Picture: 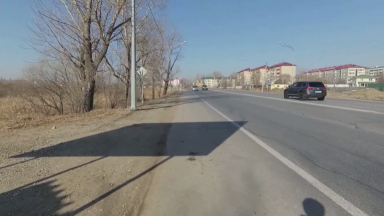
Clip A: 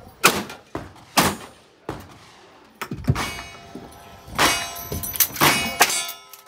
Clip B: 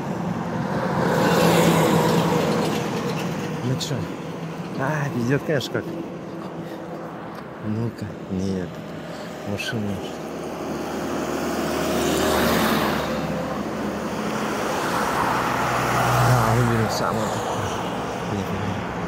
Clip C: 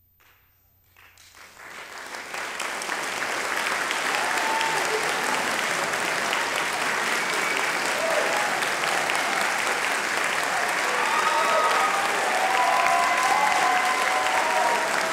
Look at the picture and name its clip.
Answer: B